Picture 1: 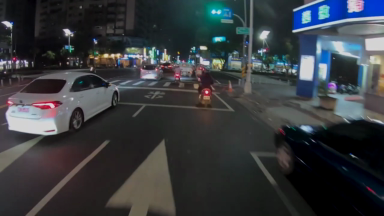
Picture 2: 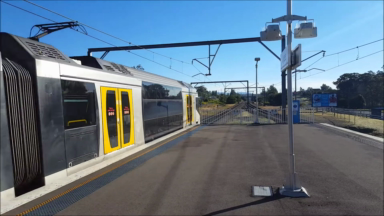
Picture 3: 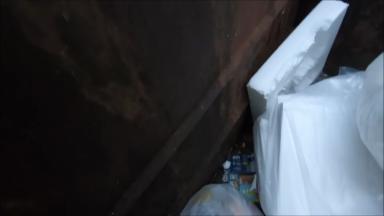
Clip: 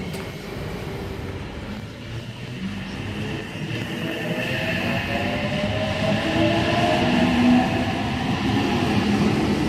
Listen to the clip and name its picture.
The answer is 2